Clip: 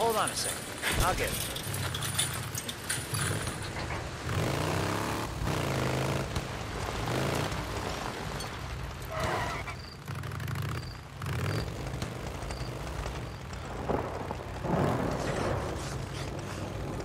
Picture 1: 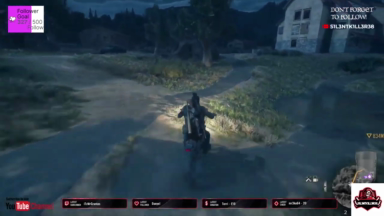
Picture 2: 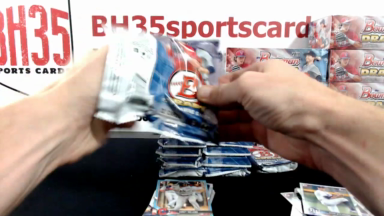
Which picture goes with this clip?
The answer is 1